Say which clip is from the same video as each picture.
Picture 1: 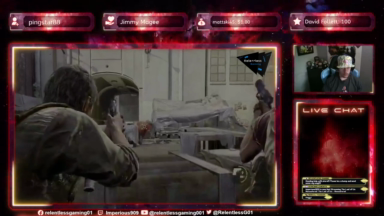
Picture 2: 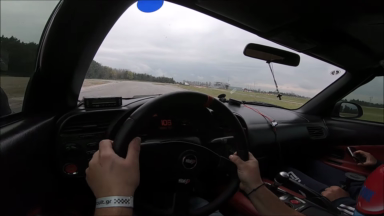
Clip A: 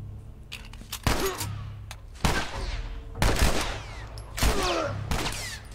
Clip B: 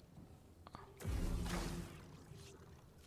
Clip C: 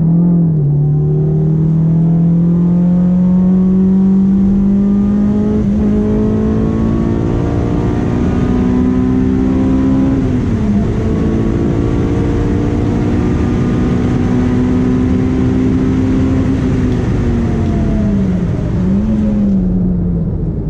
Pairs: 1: A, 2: C